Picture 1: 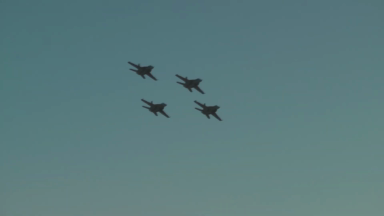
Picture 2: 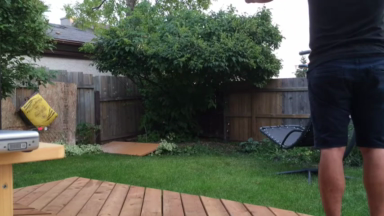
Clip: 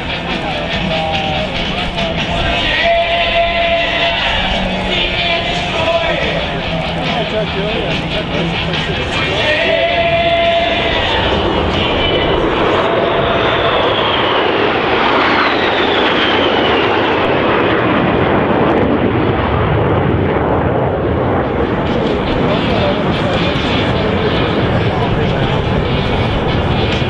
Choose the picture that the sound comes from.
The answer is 1